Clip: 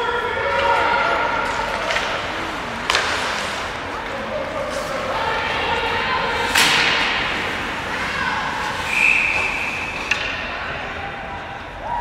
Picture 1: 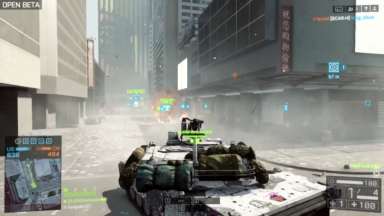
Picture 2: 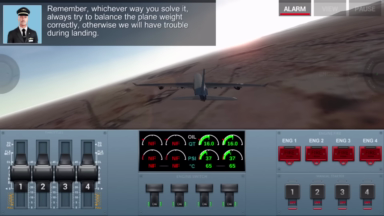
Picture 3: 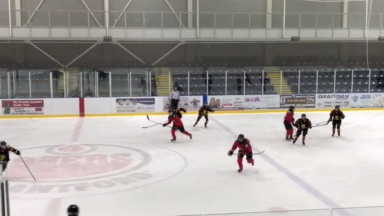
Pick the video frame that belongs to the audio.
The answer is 3